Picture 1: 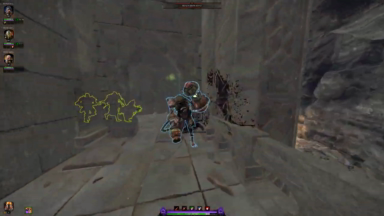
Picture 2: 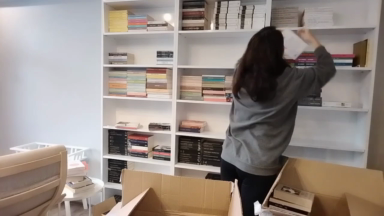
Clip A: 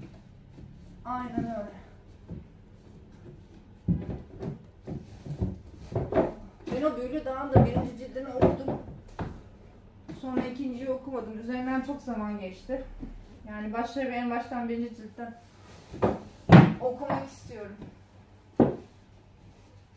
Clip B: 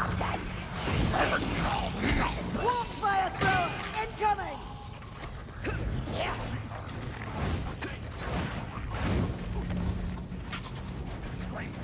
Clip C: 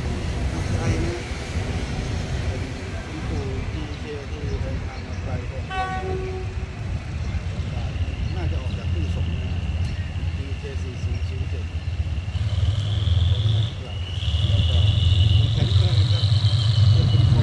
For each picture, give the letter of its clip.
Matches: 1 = B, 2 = A